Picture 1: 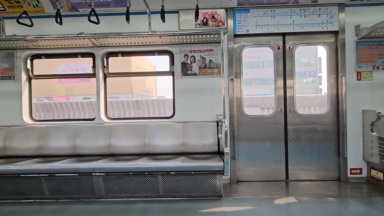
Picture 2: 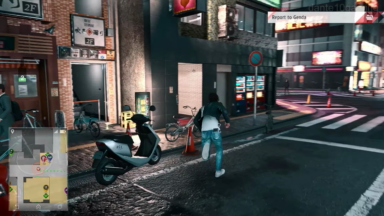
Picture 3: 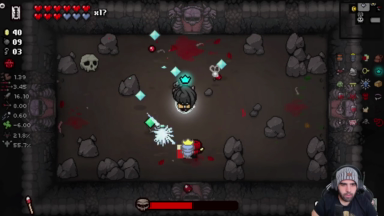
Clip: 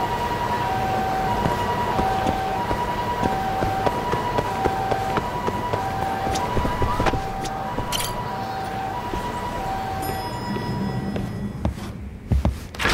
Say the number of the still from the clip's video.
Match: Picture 2